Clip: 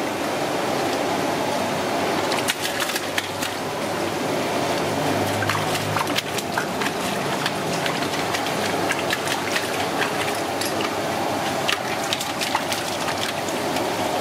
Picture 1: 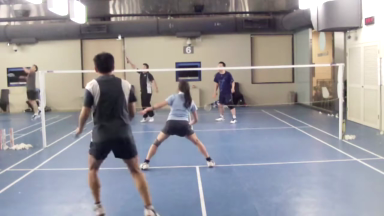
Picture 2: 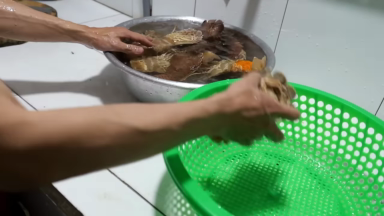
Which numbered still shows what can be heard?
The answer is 2